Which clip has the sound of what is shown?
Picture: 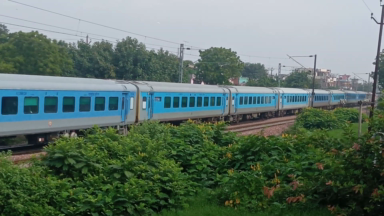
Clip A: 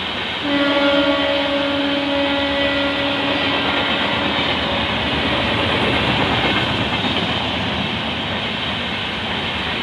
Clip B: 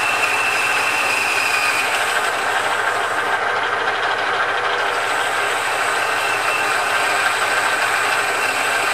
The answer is A